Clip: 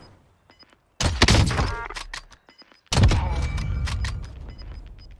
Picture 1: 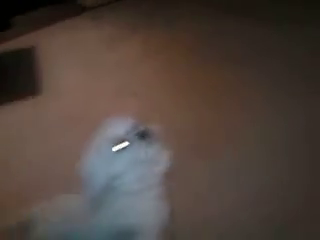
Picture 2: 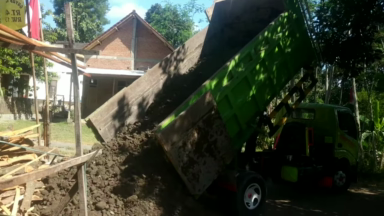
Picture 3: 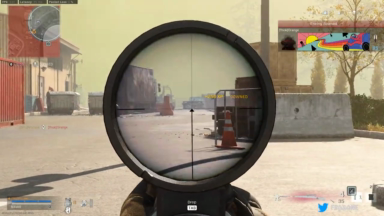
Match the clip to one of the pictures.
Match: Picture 3